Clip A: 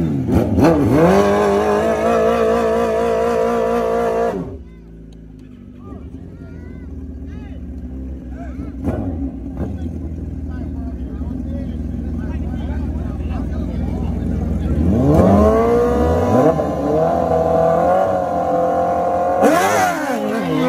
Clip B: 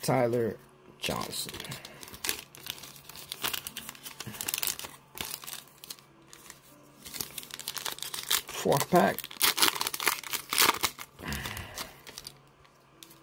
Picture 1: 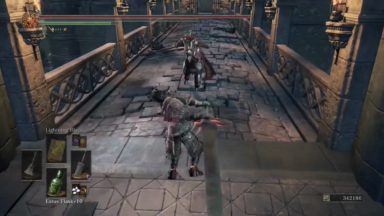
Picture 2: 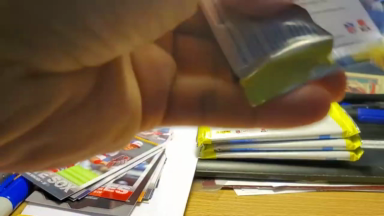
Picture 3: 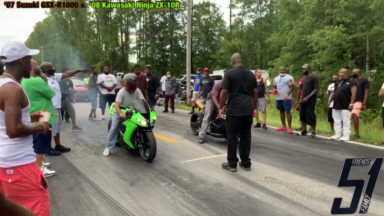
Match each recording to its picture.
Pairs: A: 3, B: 2